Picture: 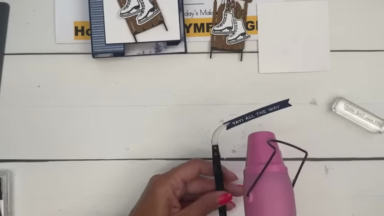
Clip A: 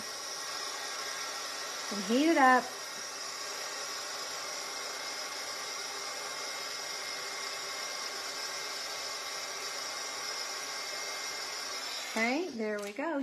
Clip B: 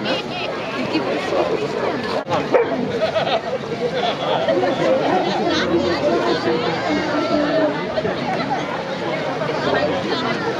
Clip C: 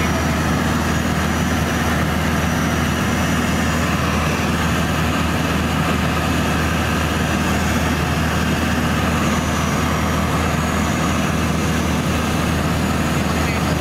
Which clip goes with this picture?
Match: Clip A